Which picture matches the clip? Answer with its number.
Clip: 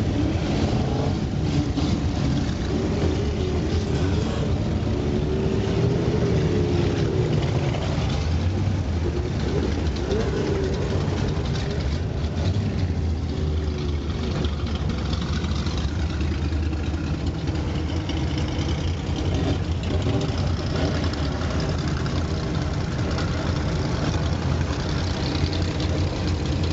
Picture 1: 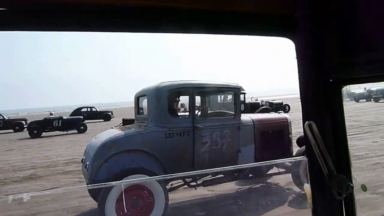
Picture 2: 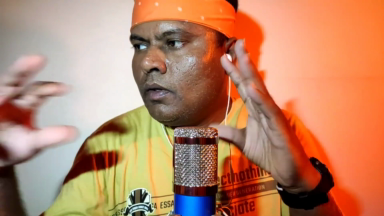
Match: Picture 1